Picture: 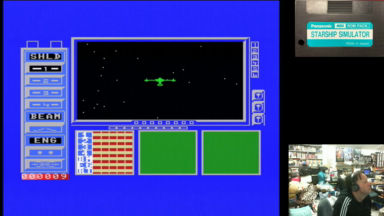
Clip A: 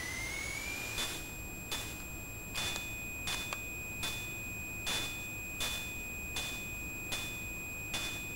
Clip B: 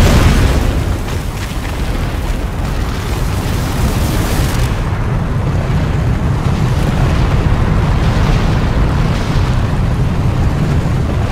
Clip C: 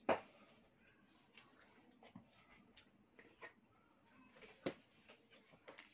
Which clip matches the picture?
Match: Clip A